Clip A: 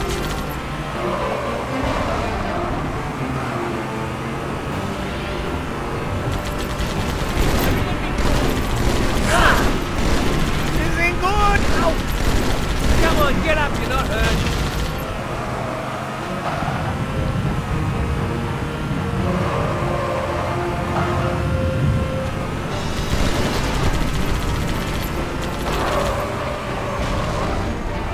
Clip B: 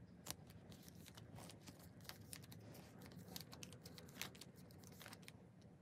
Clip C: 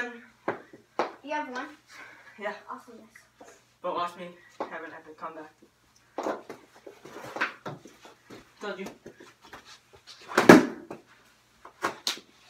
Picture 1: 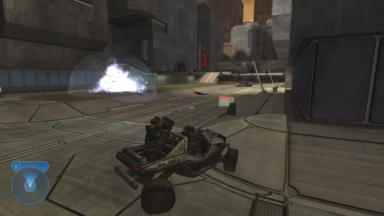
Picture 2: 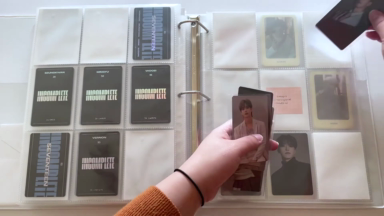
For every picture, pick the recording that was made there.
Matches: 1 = A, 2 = B